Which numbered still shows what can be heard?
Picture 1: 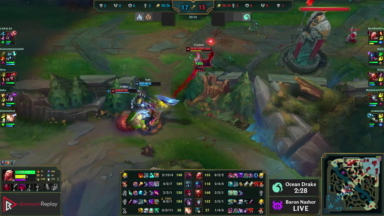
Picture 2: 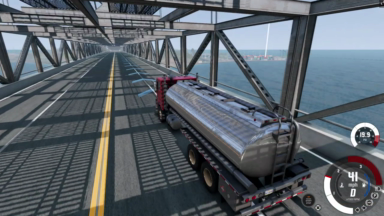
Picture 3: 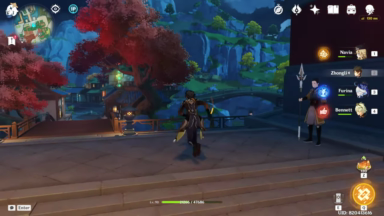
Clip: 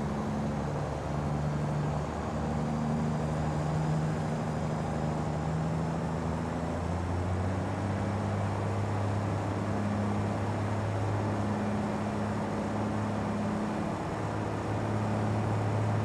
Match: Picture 2